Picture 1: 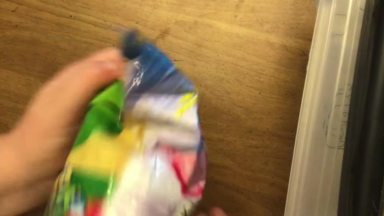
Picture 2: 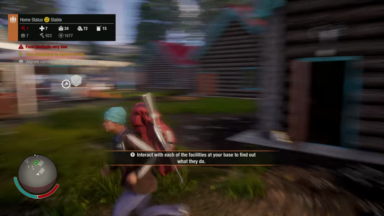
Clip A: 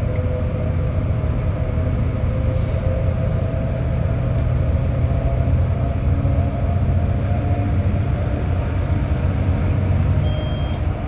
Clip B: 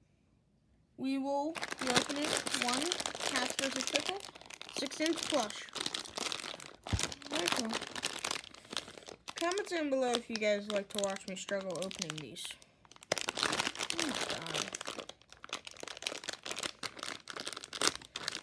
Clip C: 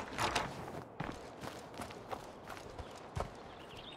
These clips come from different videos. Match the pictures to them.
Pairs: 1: B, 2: C